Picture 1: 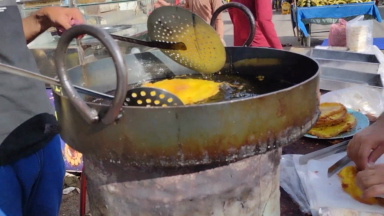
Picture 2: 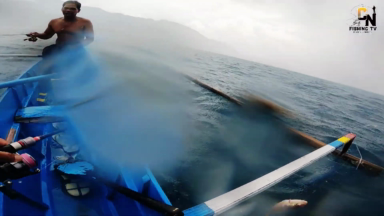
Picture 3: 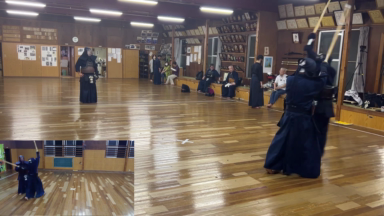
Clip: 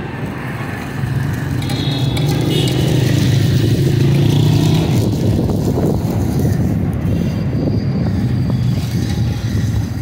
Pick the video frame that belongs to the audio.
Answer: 1